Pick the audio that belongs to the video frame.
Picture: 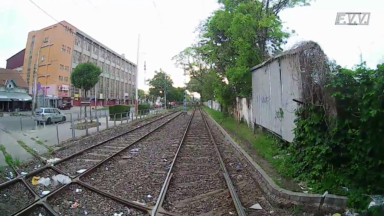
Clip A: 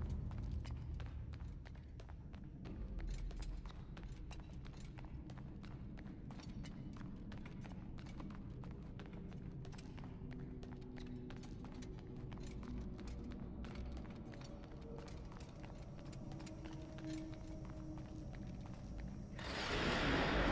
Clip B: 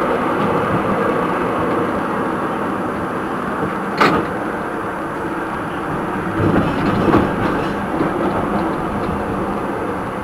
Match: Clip B